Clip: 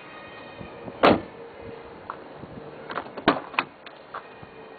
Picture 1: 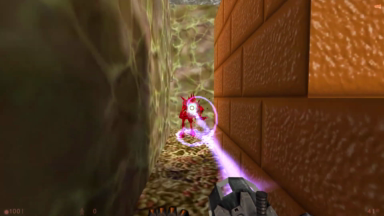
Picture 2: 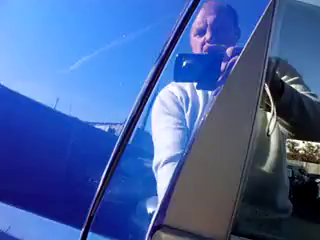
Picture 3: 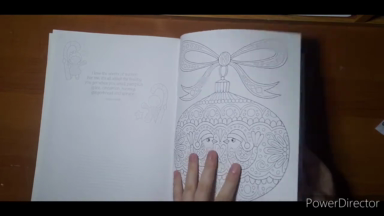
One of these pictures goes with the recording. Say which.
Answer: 2